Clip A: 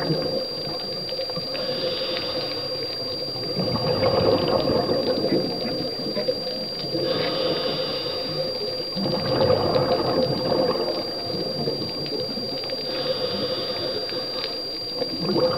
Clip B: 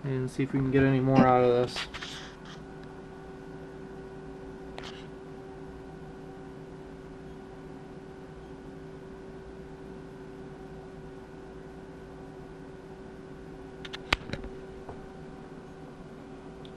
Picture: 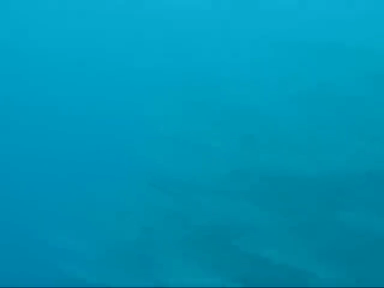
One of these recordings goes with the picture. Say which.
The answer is A